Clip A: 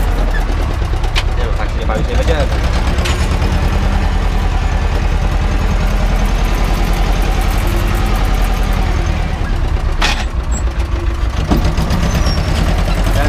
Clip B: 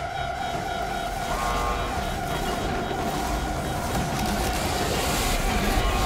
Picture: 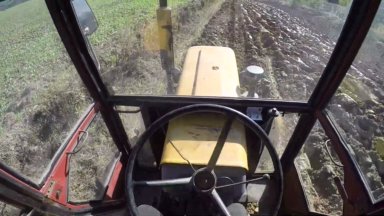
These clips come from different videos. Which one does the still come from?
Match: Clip A